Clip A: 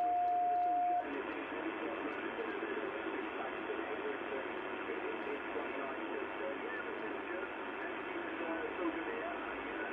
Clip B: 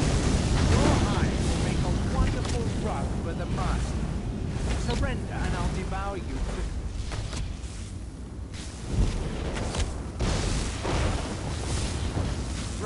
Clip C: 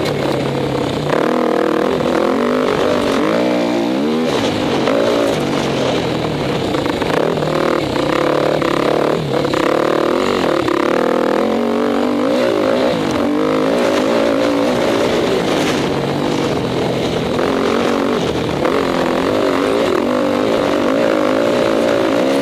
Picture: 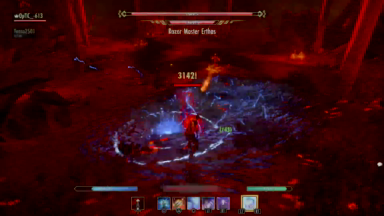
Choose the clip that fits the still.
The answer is B